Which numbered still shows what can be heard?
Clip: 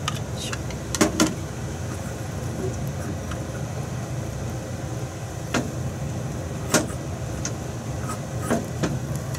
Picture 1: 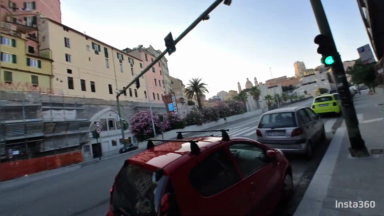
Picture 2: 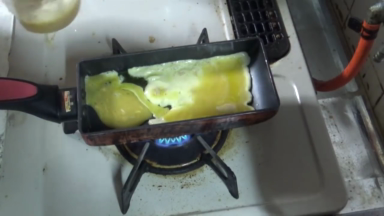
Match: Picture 2